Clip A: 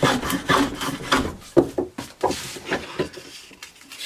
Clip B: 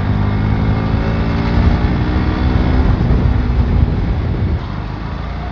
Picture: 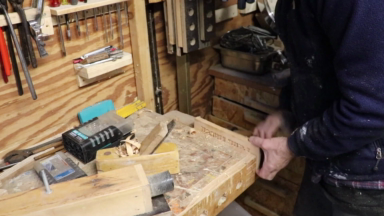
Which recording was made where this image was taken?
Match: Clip A